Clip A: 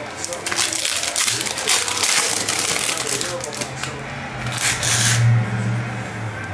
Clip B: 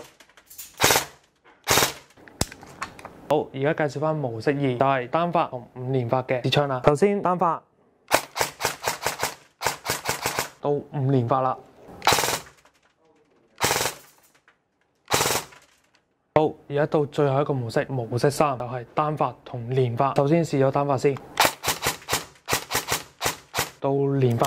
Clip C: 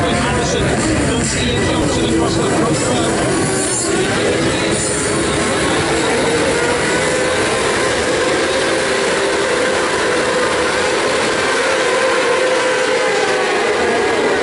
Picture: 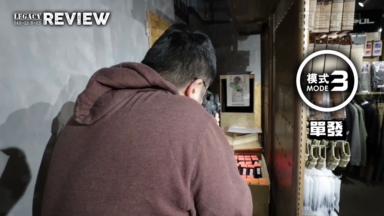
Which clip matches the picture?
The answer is B